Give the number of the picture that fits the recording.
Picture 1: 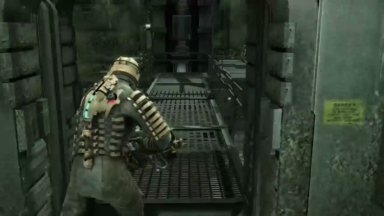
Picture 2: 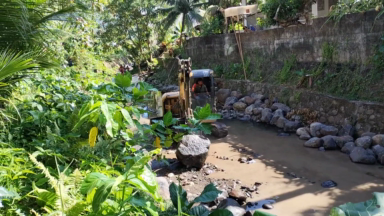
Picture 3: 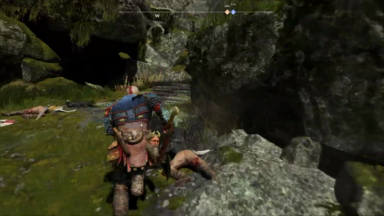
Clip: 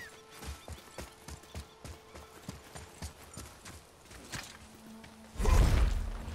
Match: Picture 3